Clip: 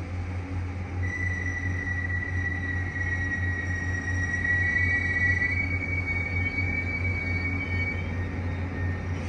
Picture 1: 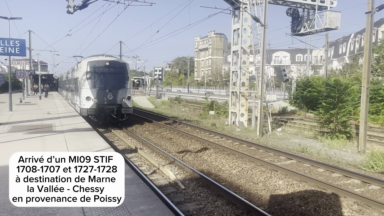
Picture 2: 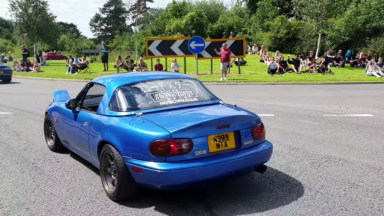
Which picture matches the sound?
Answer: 1